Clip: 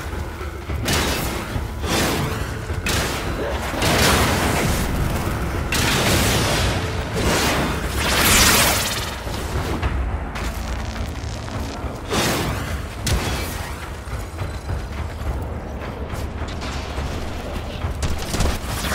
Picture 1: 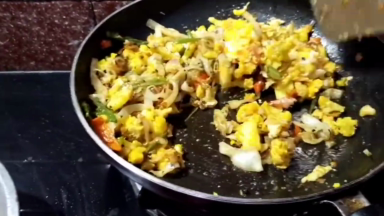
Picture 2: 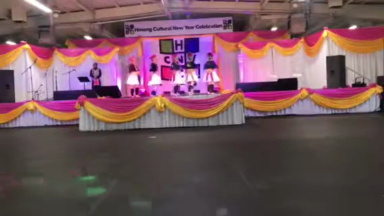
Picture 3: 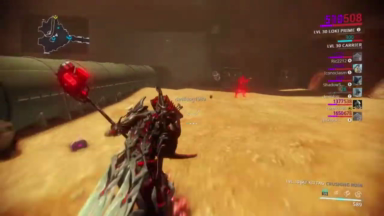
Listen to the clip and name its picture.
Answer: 3